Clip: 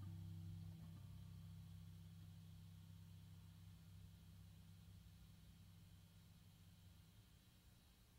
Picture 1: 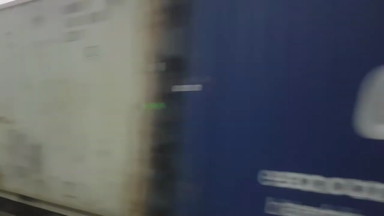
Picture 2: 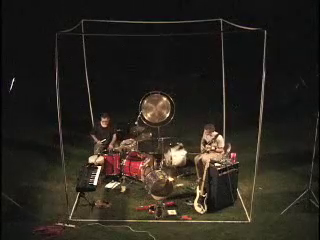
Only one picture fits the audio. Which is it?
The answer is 2